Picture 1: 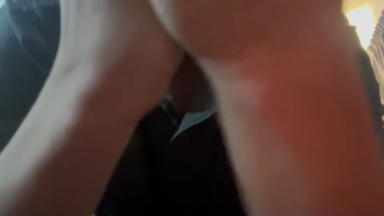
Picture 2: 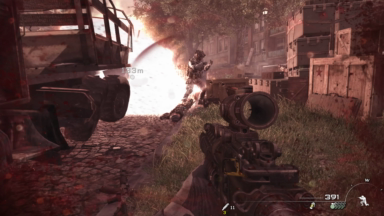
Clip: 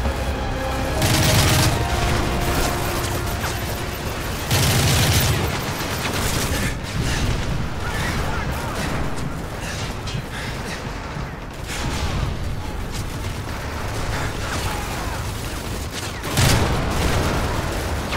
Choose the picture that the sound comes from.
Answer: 2